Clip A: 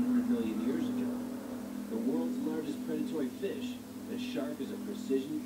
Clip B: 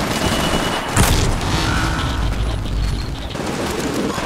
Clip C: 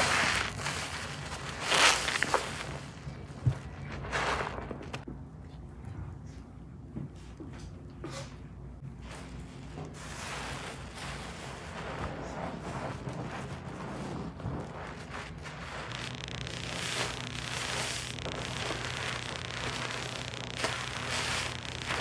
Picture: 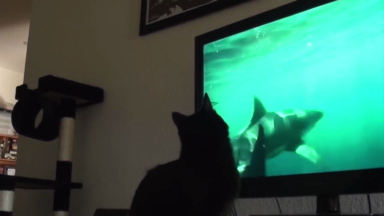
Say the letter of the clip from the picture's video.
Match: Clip A